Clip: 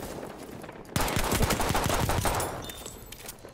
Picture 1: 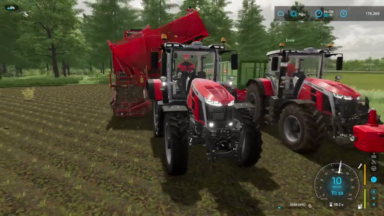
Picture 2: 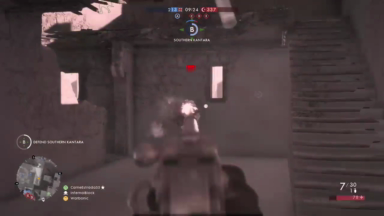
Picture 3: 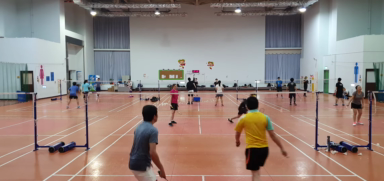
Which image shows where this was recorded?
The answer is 2